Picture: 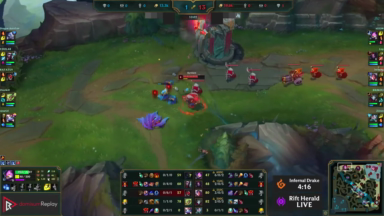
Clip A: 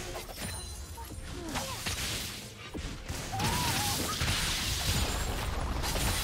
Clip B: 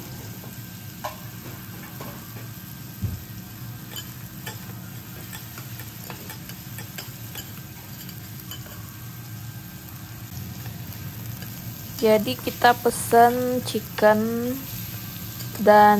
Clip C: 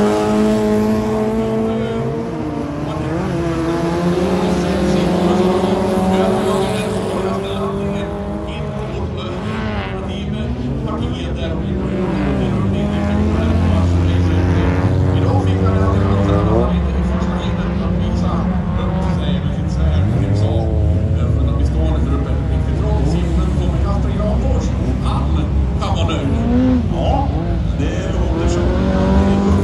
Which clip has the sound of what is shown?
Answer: A